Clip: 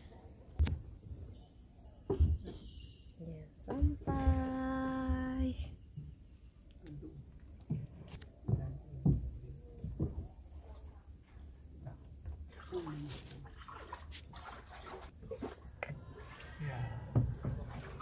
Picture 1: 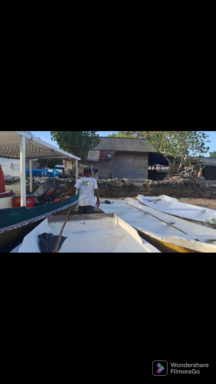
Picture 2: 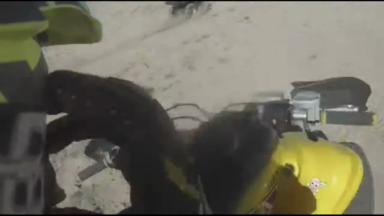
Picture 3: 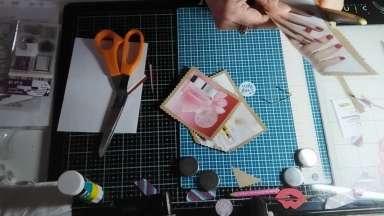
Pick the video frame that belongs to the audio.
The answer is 1